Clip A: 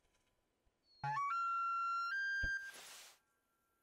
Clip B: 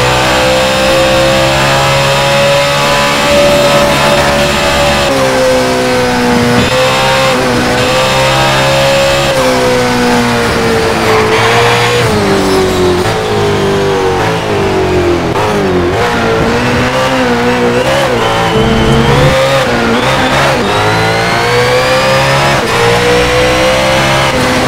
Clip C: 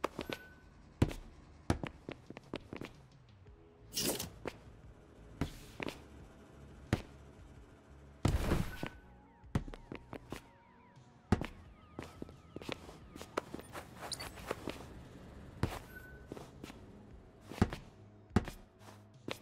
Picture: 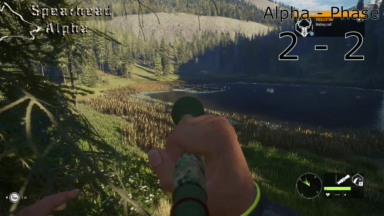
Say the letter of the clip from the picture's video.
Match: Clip A